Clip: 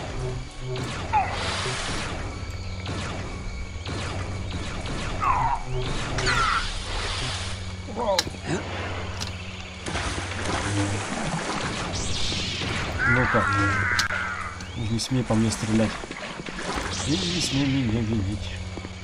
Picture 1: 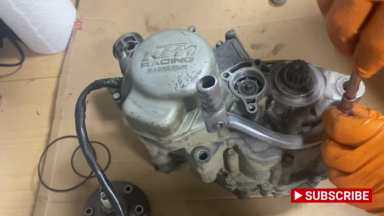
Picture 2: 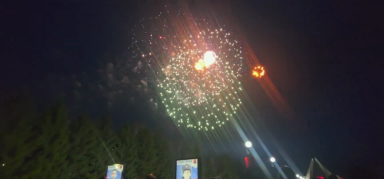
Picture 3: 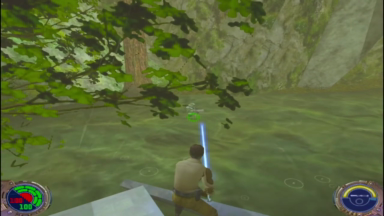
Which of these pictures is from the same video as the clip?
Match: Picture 3